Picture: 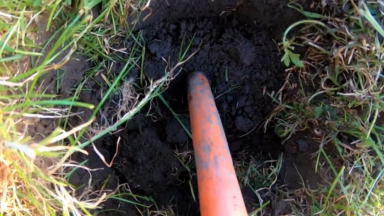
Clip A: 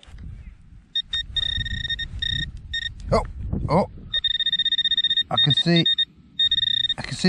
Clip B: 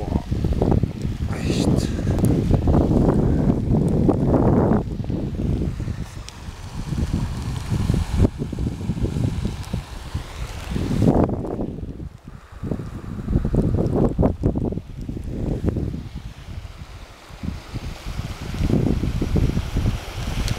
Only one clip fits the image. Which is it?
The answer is A